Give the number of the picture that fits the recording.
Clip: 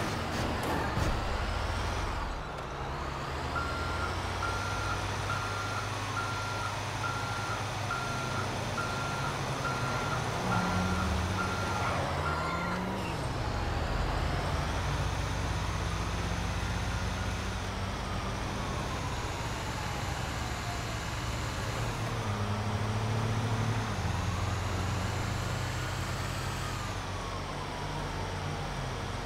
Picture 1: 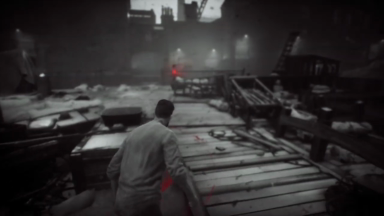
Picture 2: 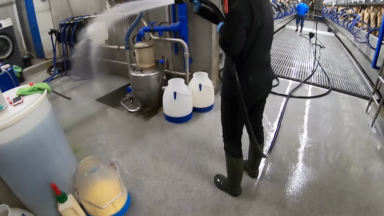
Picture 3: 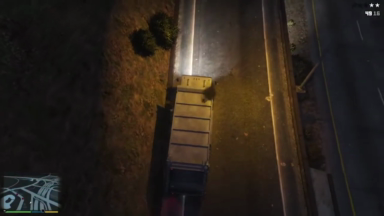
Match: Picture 3